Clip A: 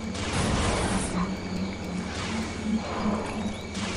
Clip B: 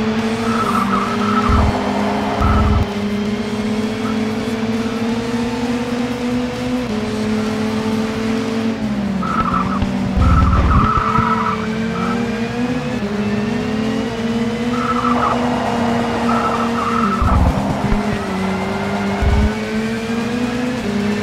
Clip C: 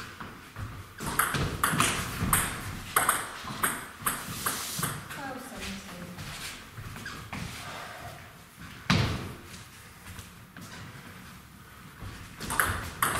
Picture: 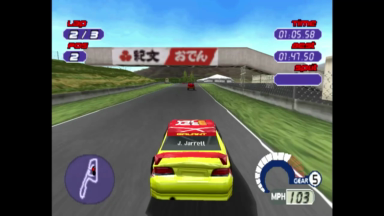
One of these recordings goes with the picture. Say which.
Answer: B